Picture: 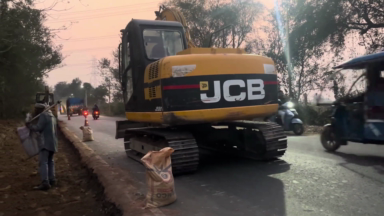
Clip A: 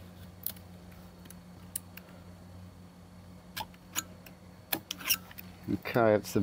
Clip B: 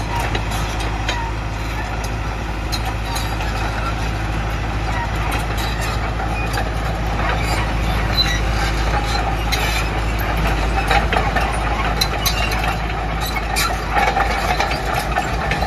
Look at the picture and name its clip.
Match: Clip B